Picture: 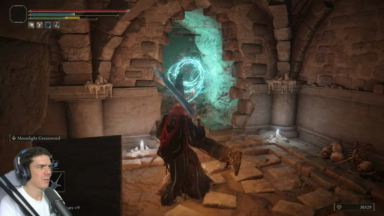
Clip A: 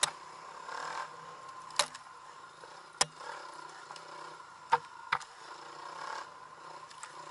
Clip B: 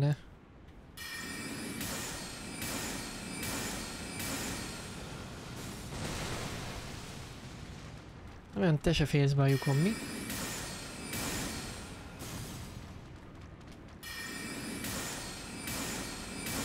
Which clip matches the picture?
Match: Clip B